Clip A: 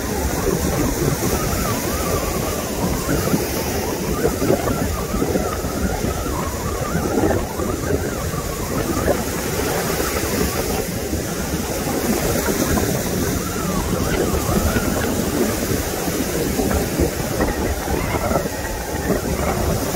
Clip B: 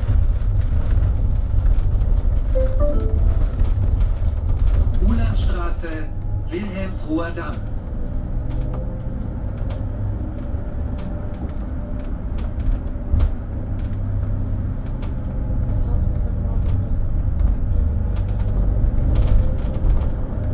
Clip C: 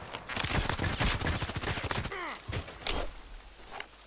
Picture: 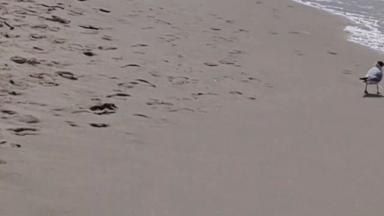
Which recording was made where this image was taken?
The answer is A